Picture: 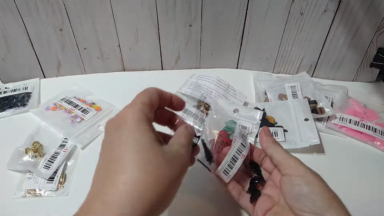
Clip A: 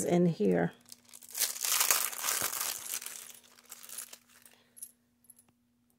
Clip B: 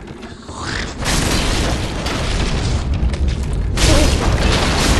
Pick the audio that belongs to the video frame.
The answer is A